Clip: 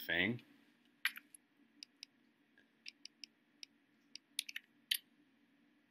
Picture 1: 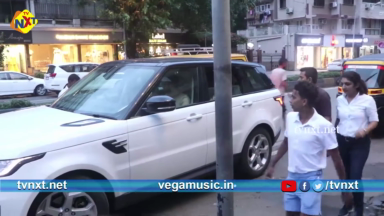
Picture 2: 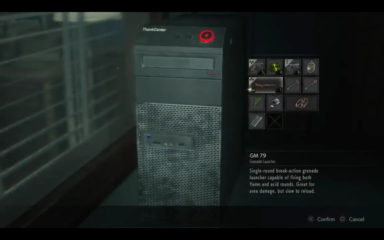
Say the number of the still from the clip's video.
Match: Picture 2